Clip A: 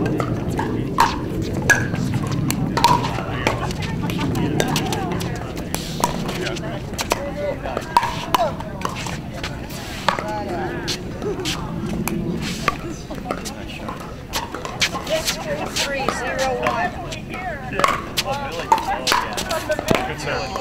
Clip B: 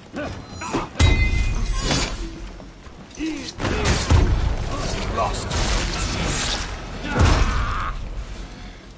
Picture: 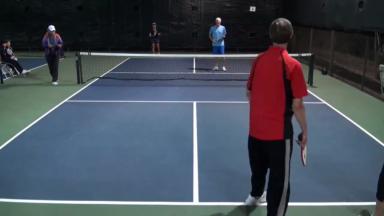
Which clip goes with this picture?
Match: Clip A